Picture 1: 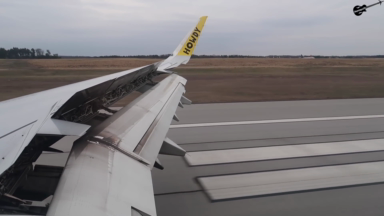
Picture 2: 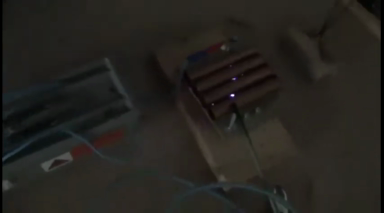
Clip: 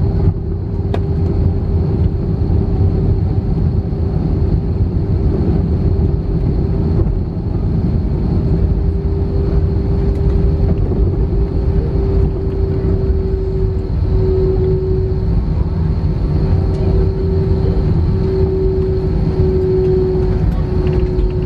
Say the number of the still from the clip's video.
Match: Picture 1